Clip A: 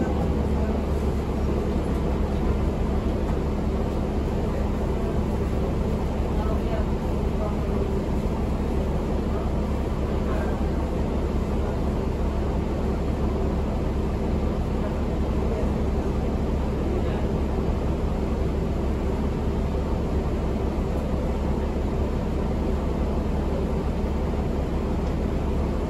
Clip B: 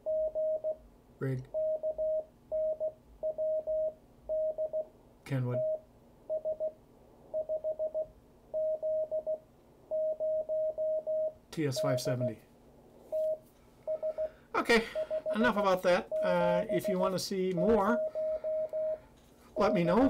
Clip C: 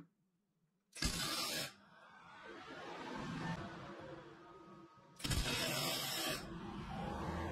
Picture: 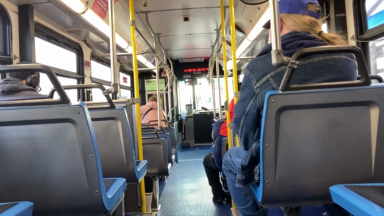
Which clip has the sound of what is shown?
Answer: A